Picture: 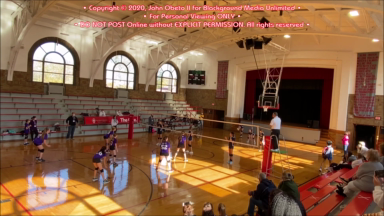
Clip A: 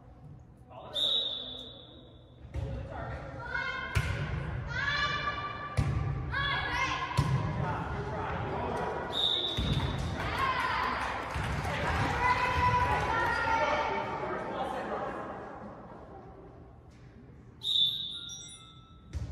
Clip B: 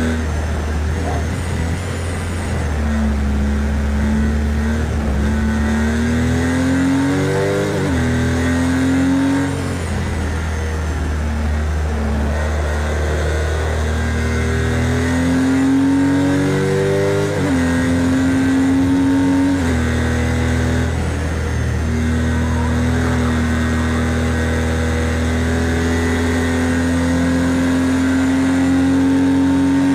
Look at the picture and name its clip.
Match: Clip A